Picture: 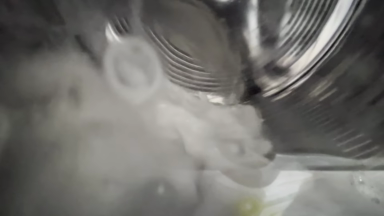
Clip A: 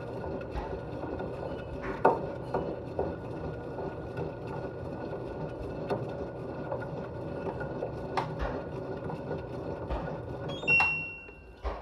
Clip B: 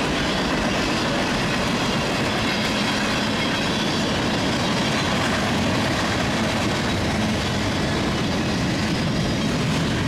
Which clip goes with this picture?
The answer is A